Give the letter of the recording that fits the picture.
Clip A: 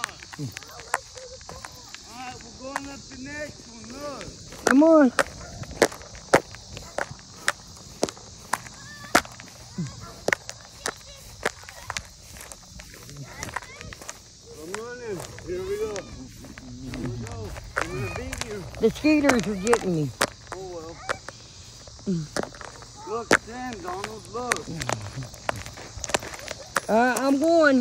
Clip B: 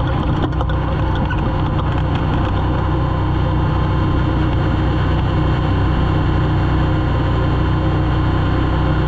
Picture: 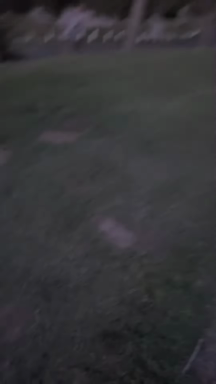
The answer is A